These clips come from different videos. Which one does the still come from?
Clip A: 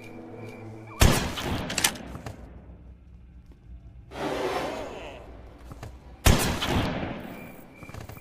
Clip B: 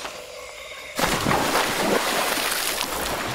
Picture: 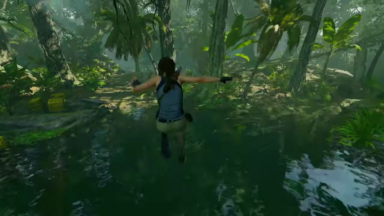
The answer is B